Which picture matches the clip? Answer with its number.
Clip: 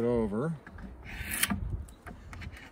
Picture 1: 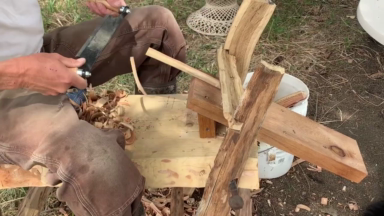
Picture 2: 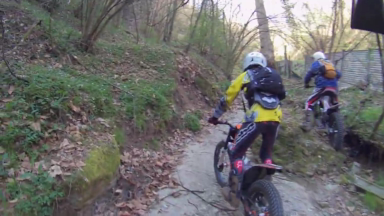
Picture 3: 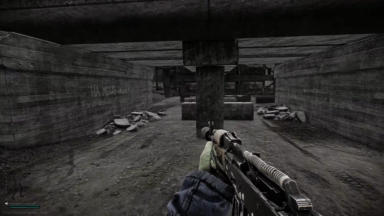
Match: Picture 1